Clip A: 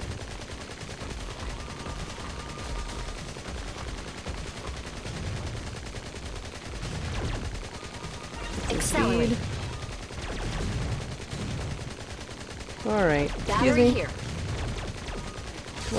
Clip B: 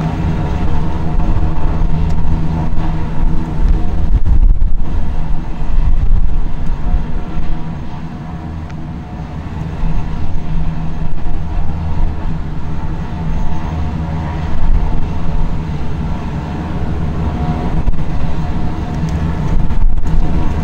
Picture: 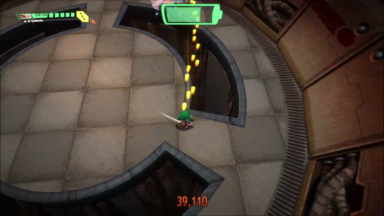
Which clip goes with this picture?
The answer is A